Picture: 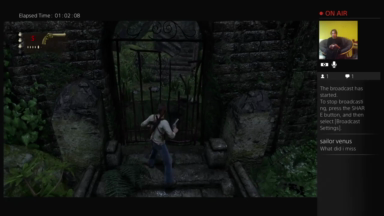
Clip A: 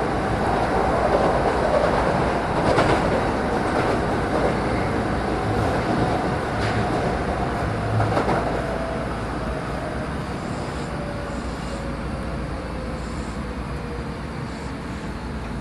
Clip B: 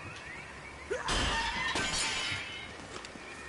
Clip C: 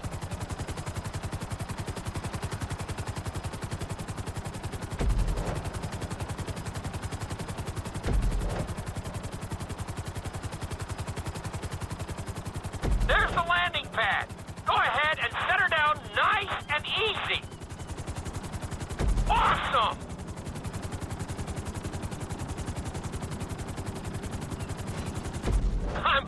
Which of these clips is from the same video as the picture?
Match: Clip B